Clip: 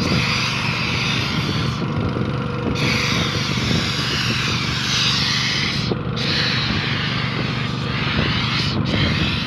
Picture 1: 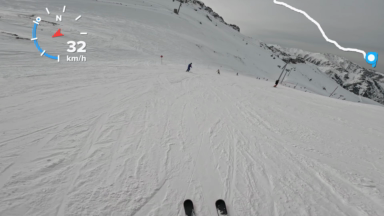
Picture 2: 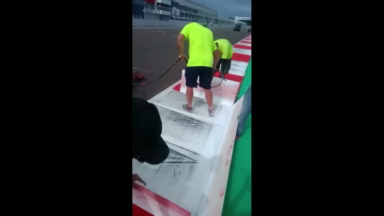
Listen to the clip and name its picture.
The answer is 2